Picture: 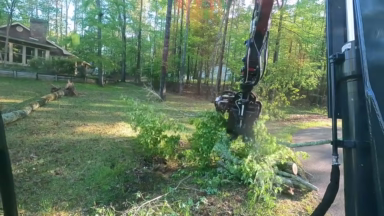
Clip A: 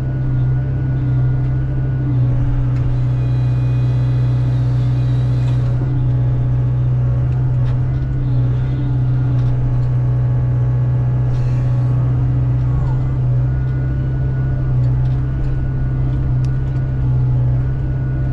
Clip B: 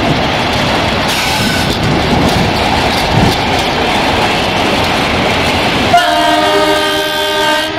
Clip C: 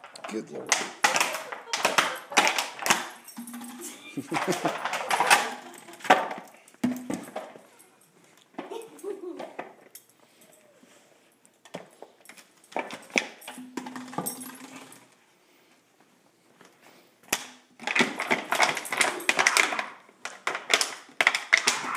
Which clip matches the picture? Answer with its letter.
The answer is A